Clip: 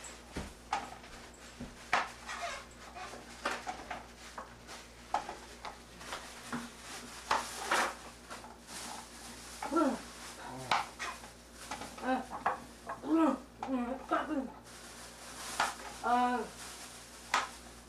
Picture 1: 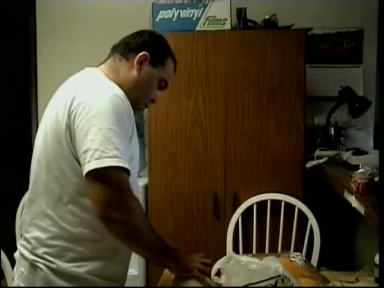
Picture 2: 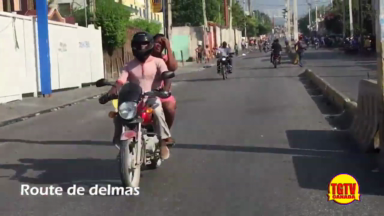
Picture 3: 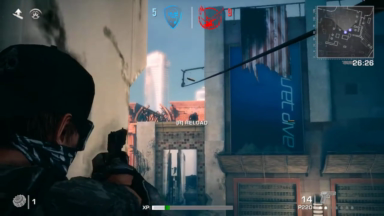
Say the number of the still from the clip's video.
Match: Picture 1